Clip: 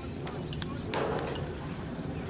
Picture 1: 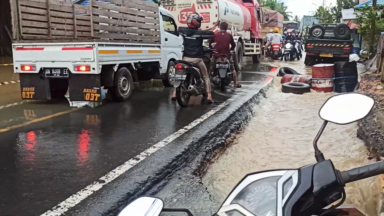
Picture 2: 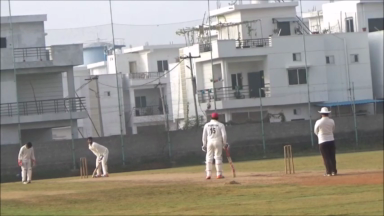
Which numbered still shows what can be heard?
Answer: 2